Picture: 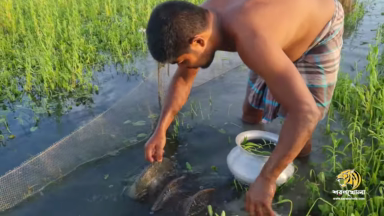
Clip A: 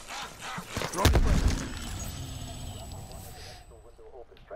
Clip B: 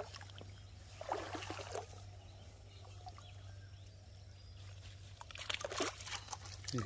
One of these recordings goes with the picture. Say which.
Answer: B